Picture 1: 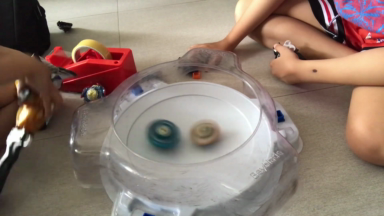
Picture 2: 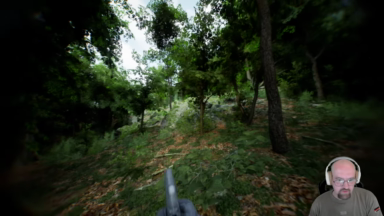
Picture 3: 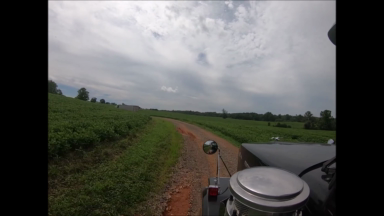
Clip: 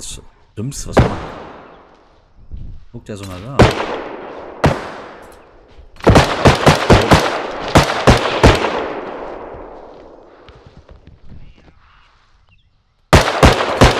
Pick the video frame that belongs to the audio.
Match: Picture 2